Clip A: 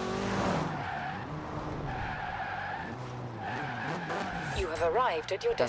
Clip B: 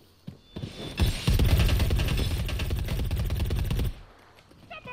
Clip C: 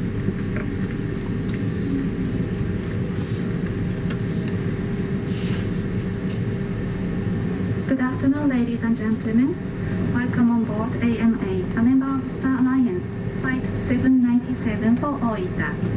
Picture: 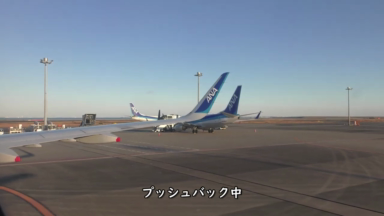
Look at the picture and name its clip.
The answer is C